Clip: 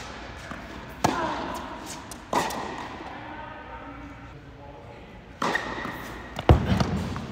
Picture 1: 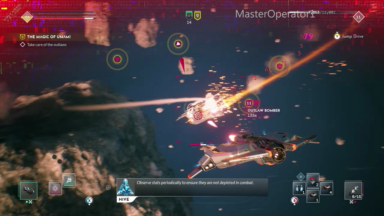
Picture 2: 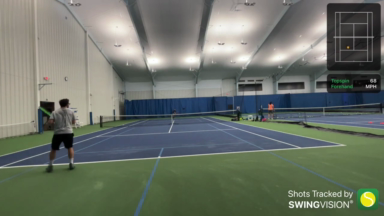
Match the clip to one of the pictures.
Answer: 2